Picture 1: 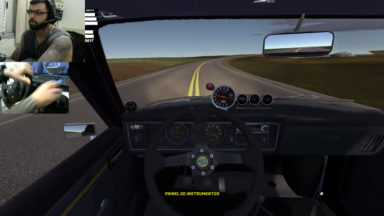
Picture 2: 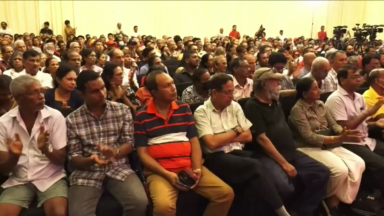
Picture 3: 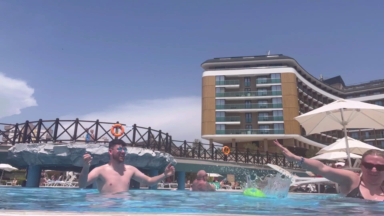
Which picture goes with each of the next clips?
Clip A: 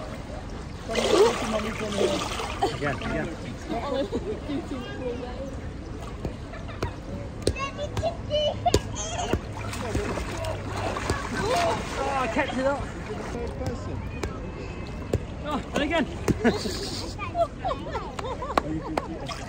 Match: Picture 3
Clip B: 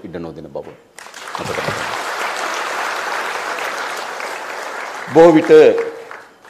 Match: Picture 2